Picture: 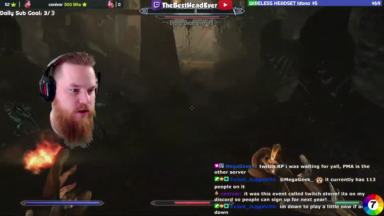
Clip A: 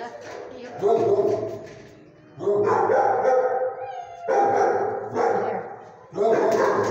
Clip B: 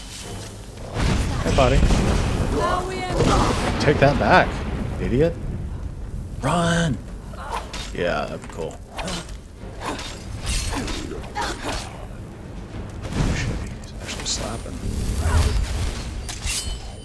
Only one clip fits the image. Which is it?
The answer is B